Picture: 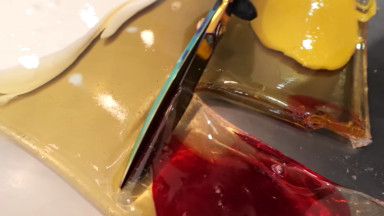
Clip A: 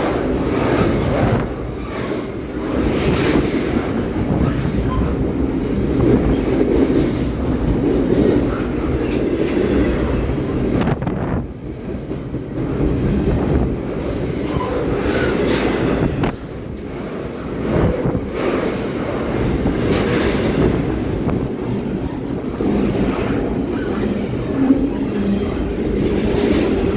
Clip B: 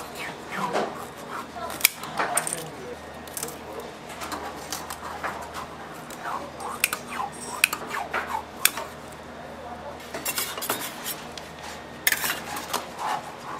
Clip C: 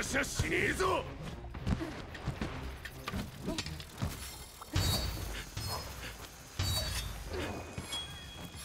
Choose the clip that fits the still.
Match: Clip B